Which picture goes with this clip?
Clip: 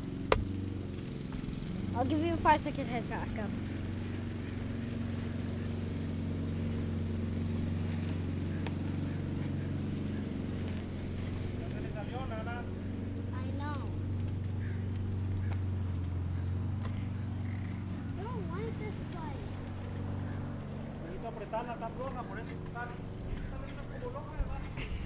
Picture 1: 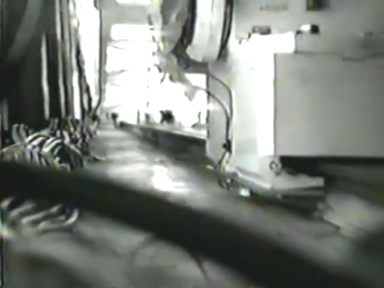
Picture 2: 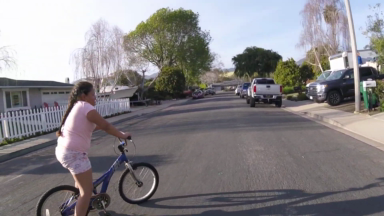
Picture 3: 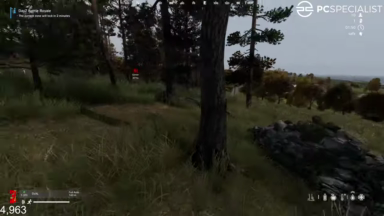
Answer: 2